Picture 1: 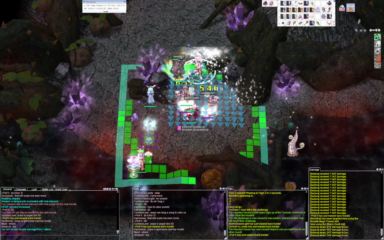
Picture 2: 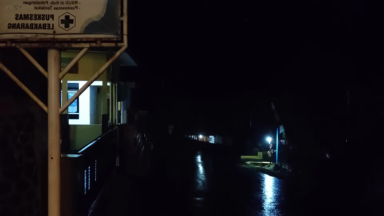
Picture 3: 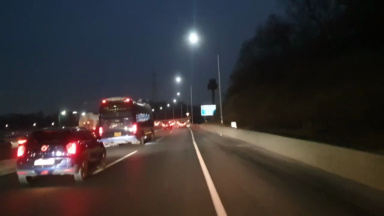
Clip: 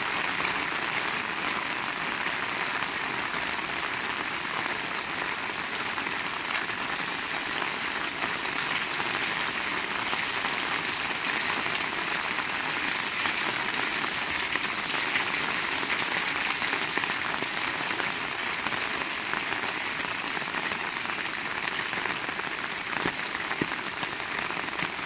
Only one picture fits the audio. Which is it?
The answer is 2